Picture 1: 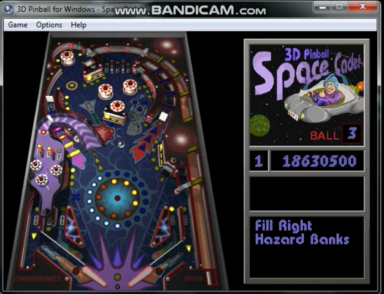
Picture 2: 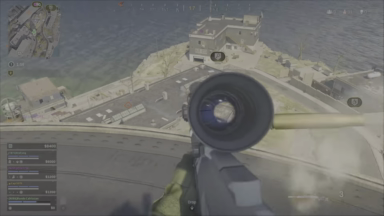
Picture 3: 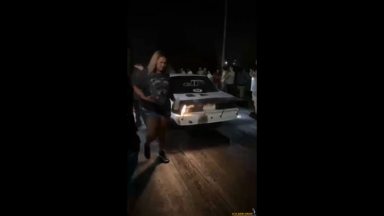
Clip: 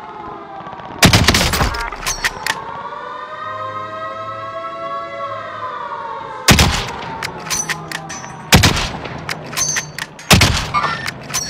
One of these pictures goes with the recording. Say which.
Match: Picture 2